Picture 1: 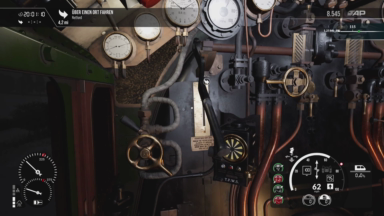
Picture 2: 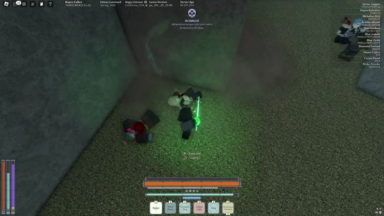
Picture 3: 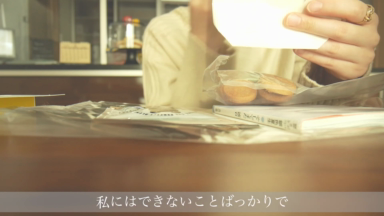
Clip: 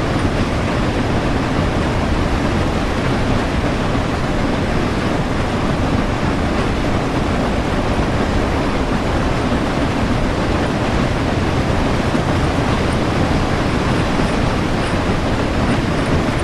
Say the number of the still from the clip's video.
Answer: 1